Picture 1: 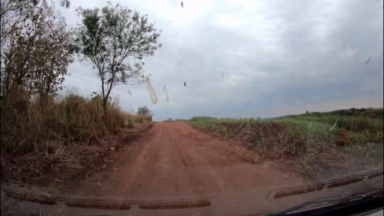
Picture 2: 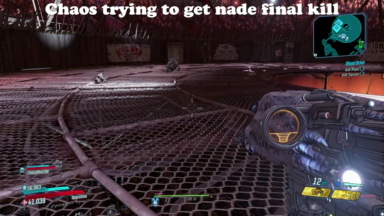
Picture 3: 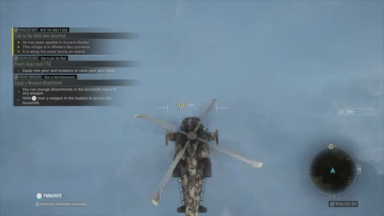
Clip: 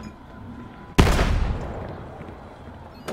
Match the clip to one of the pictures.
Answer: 2